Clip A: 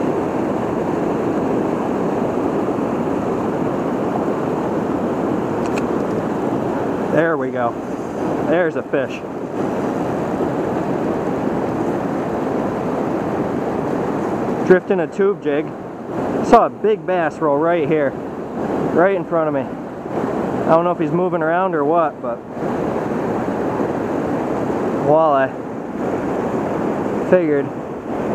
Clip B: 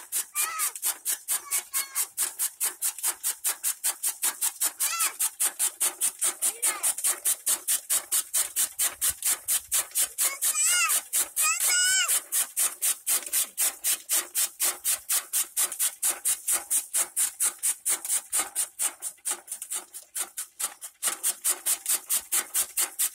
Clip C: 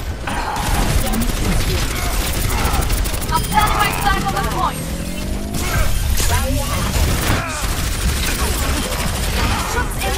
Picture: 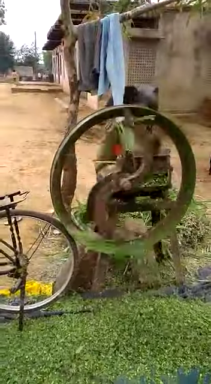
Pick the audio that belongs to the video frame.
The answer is B